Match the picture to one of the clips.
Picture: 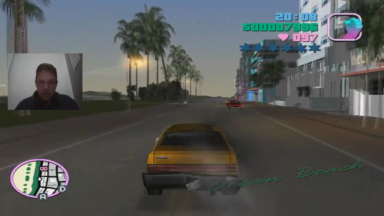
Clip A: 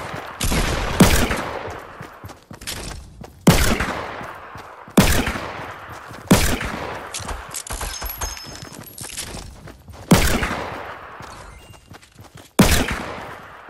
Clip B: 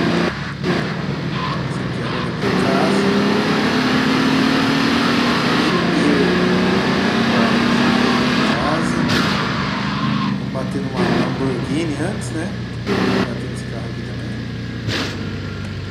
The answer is B